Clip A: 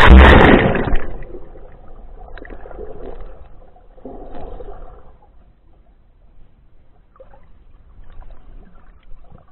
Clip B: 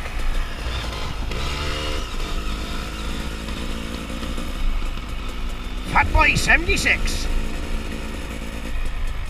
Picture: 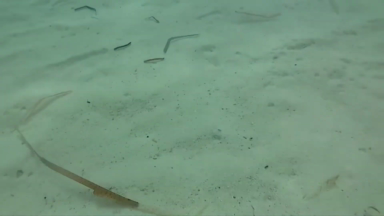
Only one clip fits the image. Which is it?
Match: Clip A